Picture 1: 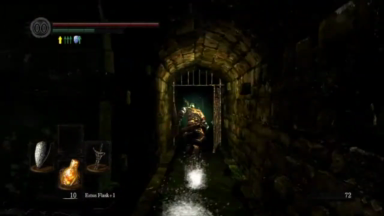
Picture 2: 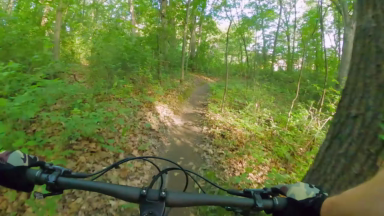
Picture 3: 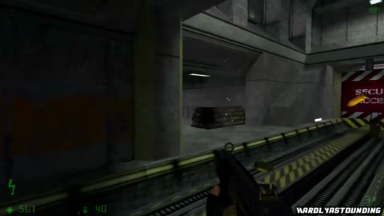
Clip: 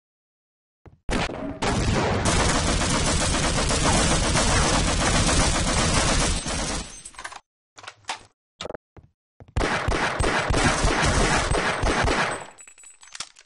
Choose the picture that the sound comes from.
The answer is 3